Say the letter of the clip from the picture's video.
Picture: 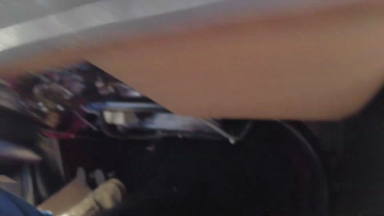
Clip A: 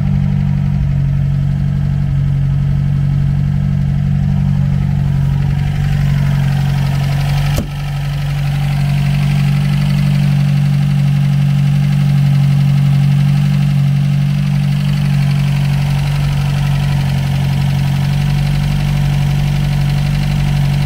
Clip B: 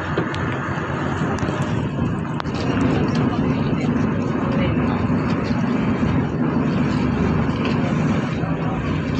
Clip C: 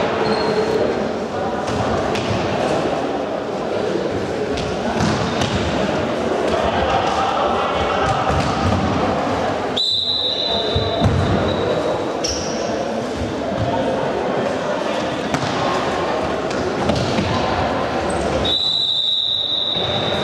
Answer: A